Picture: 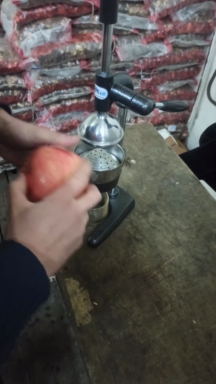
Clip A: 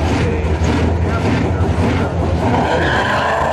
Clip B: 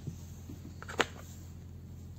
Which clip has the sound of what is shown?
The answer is B